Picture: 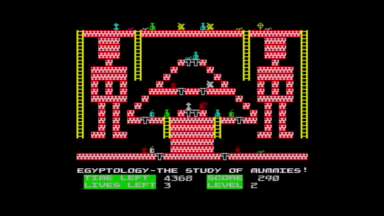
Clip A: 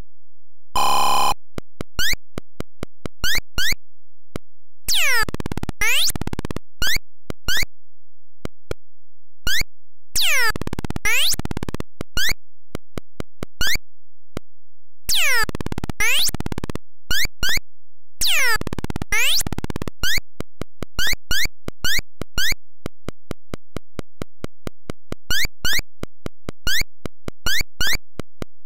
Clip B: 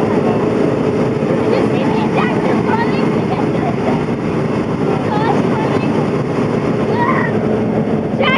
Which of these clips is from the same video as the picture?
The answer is A